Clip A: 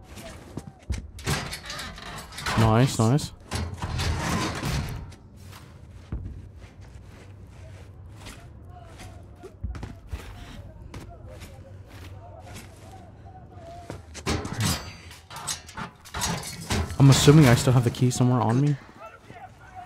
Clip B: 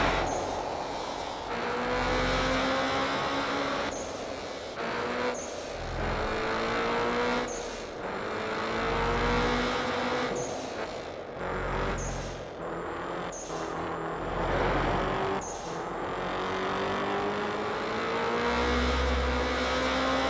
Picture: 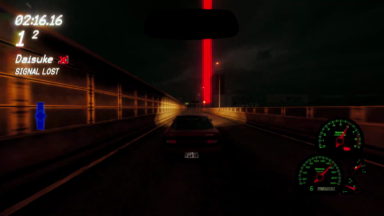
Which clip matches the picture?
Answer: B